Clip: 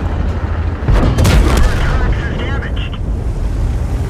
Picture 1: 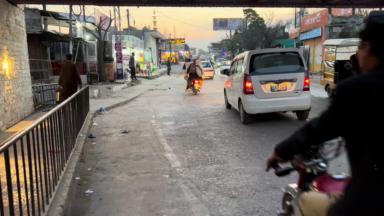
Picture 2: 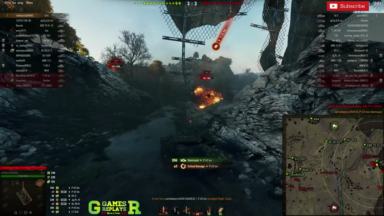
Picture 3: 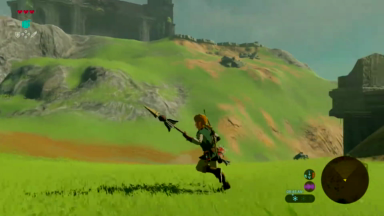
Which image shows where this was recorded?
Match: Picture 2